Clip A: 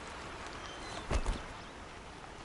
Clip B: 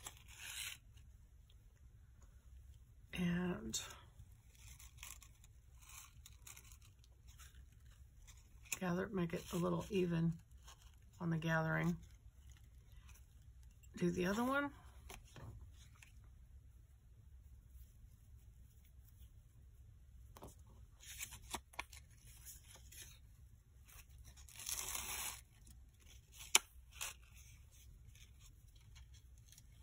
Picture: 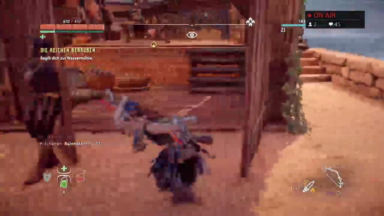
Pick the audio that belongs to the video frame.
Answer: A